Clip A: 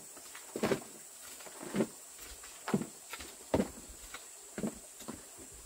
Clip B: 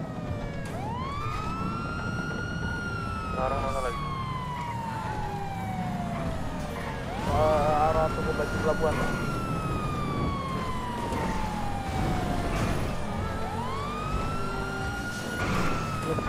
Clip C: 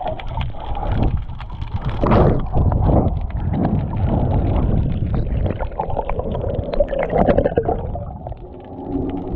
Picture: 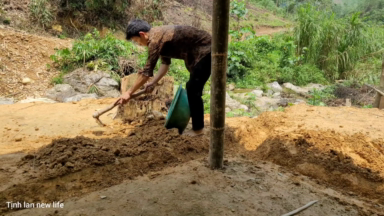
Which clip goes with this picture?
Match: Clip A